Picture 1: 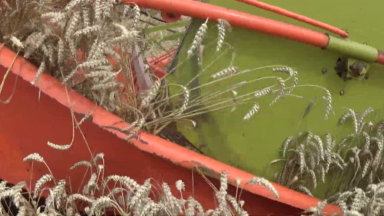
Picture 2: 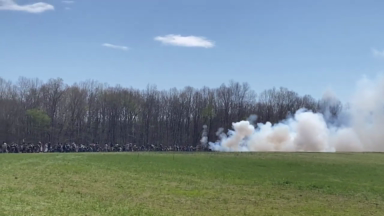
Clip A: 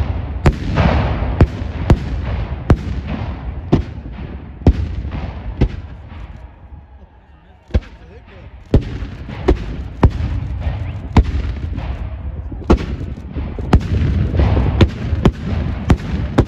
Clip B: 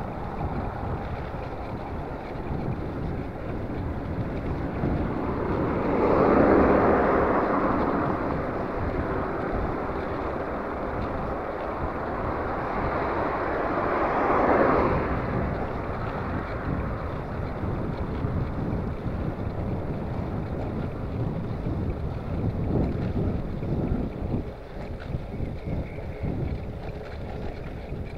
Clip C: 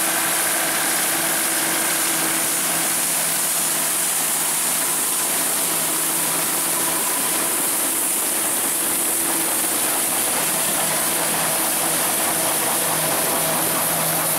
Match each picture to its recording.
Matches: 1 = C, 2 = A